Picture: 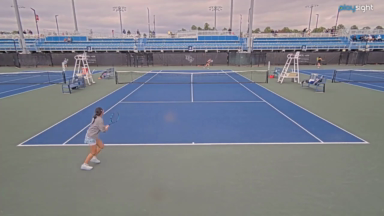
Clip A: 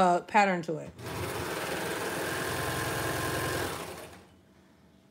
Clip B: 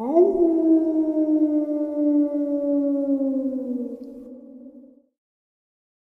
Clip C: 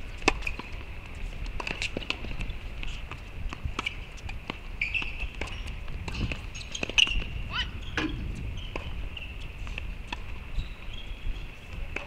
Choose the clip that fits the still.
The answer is C